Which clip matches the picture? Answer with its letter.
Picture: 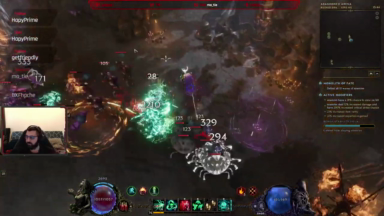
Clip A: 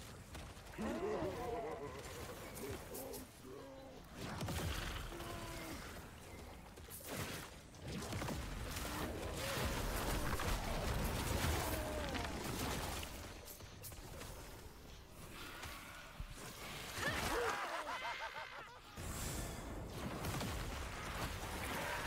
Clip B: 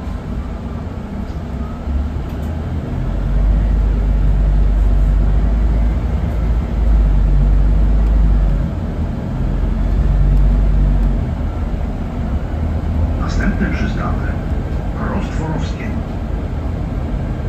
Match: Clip A